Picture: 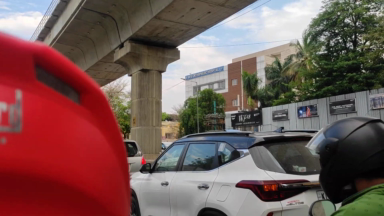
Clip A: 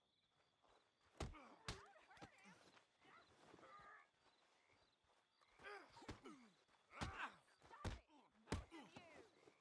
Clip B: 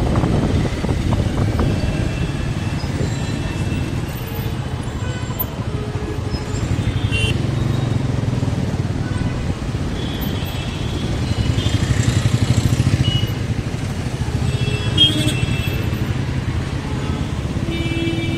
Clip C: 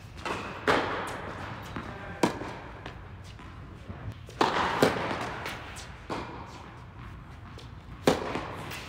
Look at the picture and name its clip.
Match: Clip B